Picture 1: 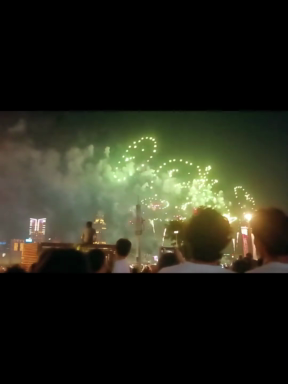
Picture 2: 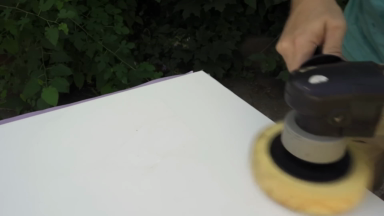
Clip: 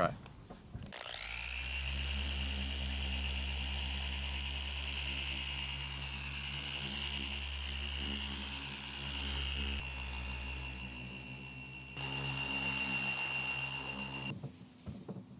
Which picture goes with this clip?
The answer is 2